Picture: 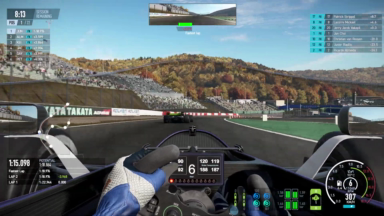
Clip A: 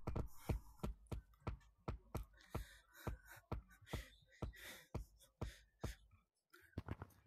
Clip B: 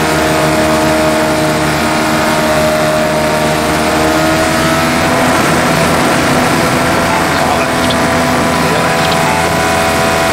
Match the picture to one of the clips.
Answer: B